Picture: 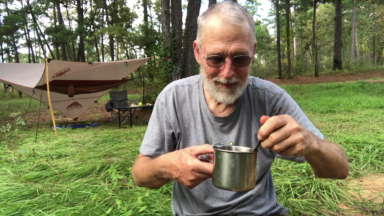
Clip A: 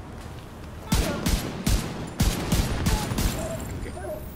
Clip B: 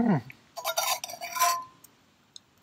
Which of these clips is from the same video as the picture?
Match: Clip B